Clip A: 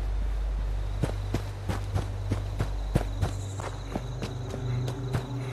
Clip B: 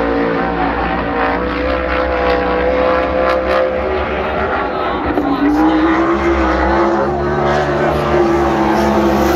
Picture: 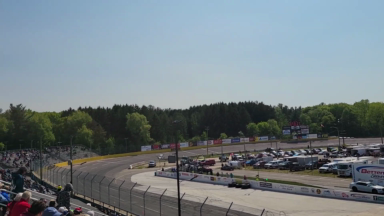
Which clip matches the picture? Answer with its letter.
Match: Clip B